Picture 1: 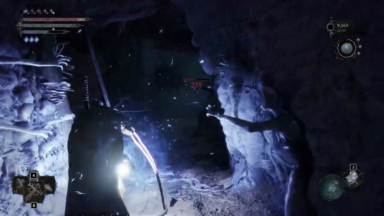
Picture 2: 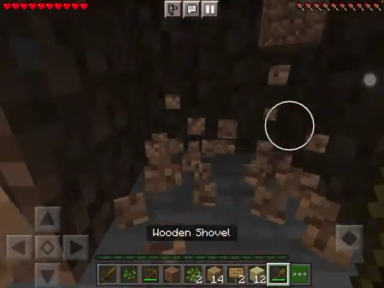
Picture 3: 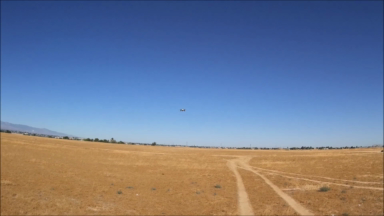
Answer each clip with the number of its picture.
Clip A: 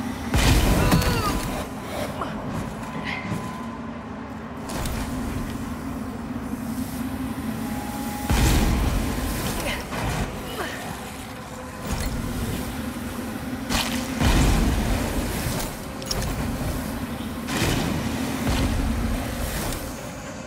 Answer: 1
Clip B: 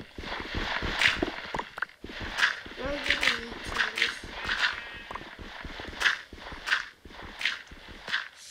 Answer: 2